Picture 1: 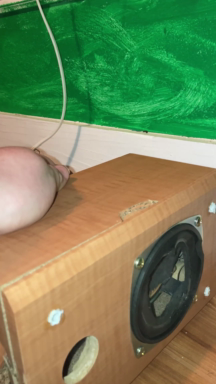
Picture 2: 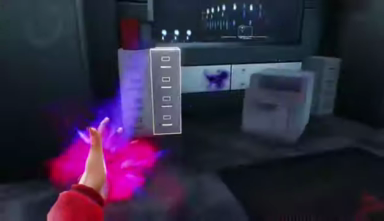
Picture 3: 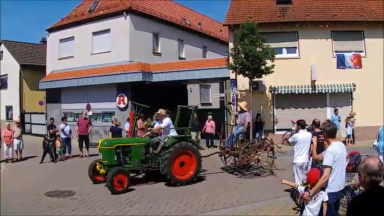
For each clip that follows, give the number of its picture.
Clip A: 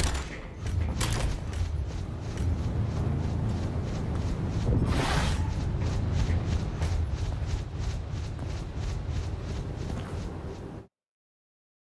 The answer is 2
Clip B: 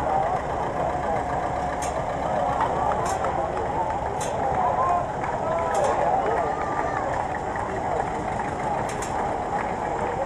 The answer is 3